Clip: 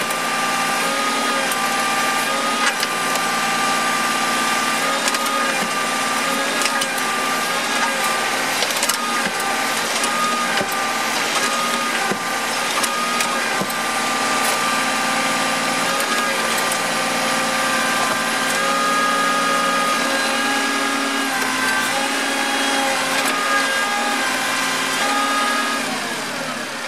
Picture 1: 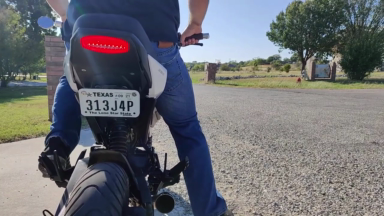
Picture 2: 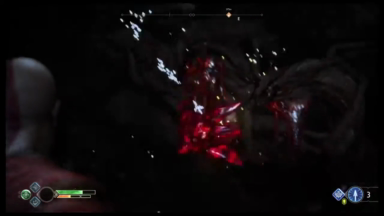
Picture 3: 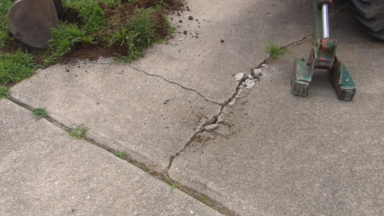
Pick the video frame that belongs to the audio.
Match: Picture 3